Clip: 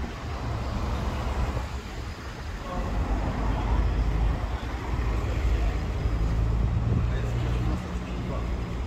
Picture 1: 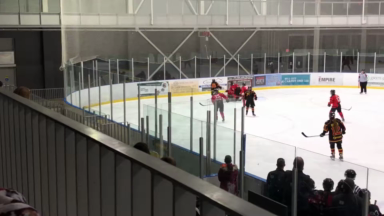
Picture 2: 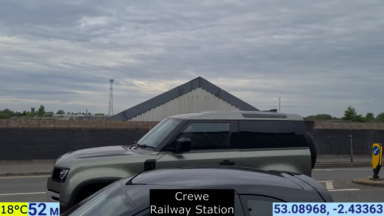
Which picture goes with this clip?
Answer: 2